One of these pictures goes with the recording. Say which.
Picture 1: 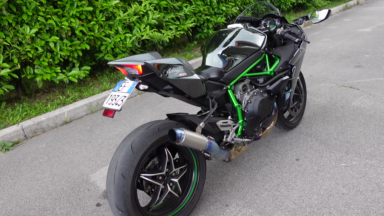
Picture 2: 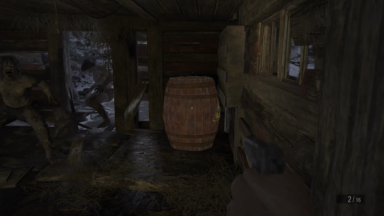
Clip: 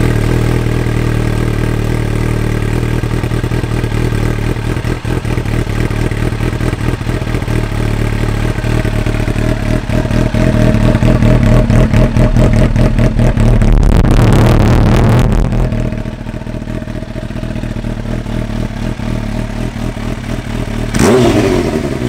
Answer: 1